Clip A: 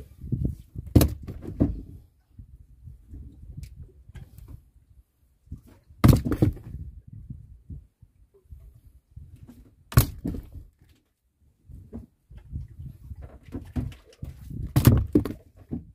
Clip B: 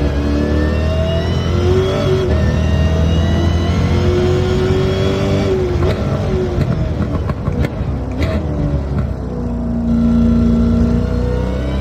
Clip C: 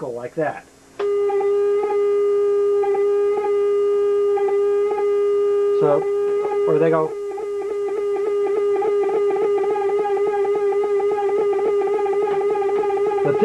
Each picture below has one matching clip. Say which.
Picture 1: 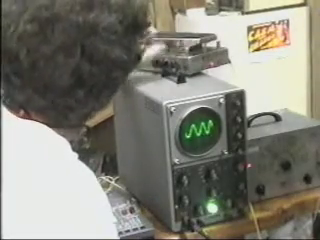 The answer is C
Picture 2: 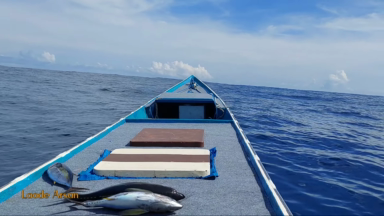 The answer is A